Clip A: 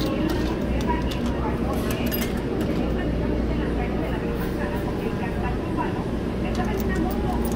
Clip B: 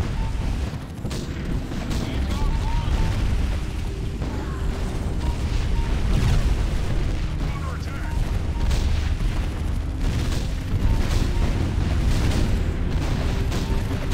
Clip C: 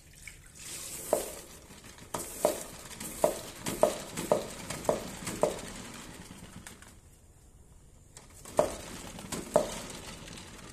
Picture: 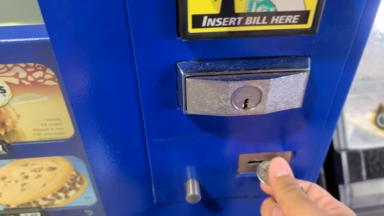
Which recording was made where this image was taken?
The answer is A